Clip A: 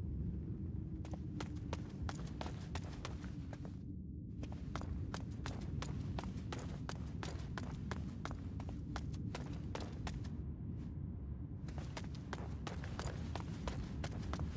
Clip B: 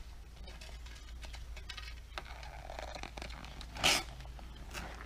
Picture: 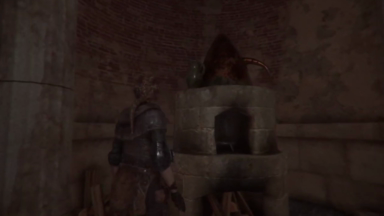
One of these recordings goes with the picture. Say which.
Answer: A